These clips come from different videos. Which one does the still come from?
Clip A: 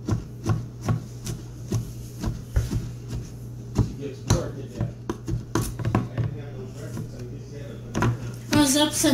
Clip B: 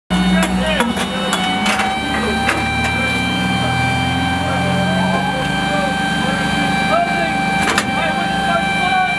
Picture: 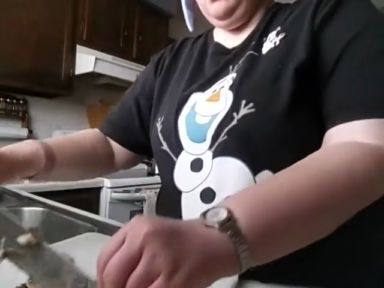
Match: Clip A